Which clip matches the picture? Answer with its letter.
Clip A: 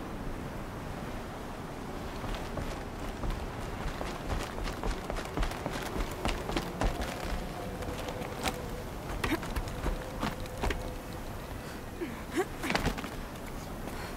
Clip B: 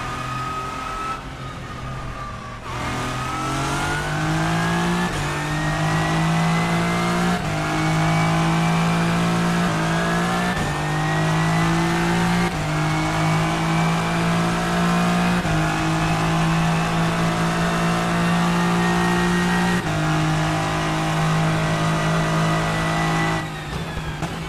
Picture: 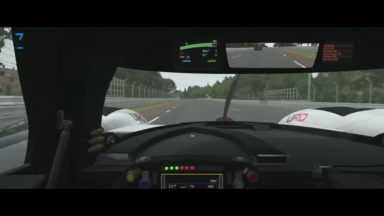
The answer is B